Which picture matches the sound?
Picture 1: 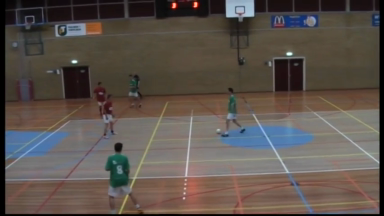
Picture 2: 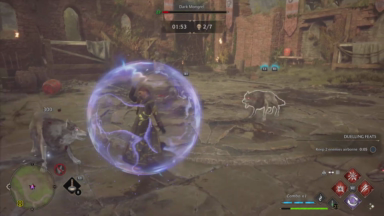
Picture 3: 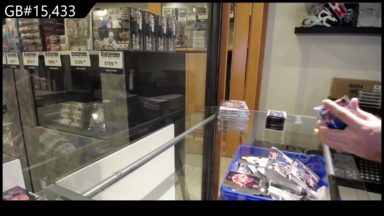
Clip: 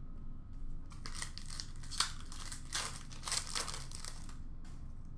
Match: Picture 3